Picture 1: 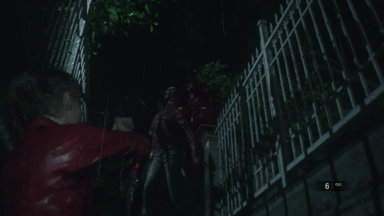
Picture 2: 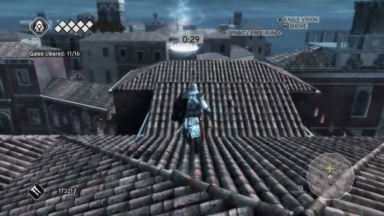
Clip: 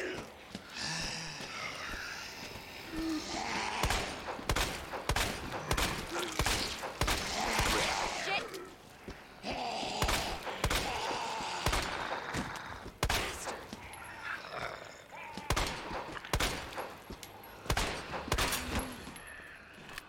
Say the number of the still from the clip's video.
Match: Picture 1